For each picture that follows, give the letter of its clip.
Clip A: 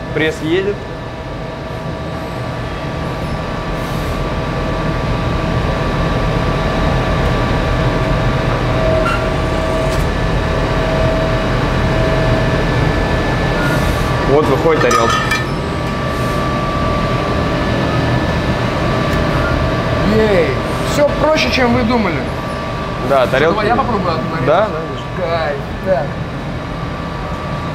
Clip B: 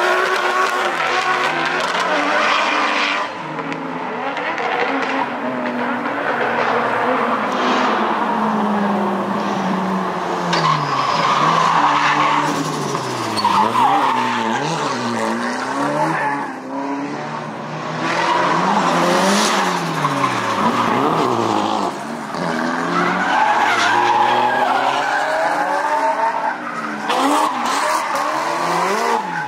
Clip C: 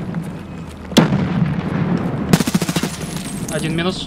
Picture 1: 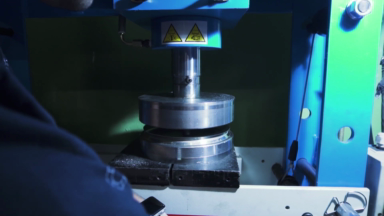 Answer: A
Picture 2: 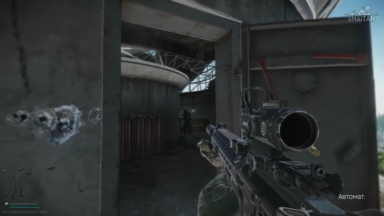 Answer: C